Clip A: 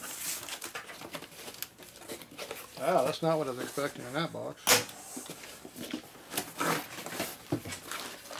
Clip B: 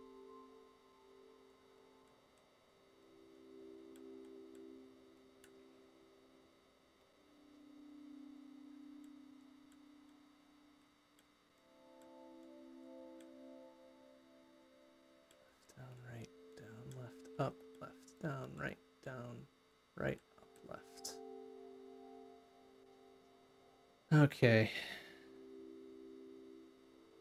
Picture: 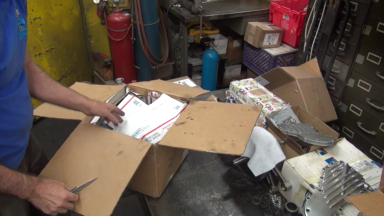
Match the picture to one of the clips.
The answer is A